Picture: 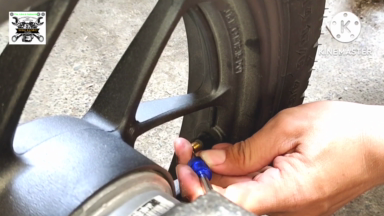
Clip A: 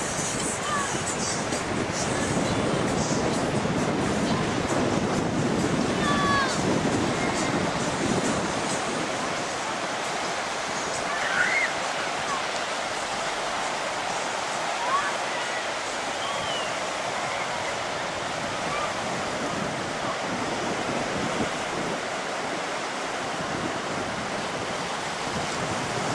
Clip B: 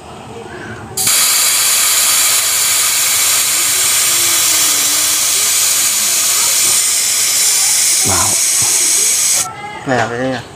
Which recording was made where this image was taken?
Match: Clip B